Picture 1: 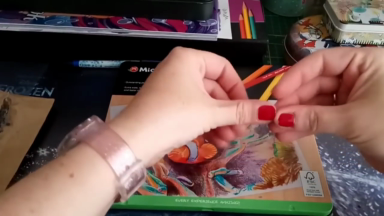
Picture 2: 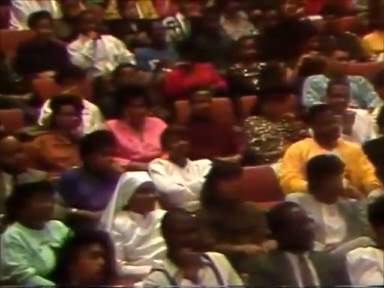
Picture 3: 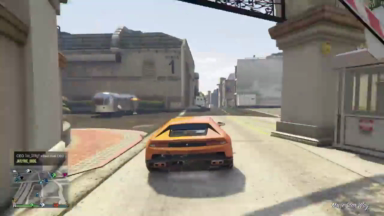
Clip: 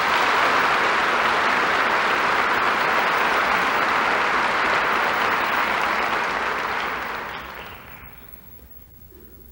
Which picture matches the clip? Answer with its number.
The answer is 2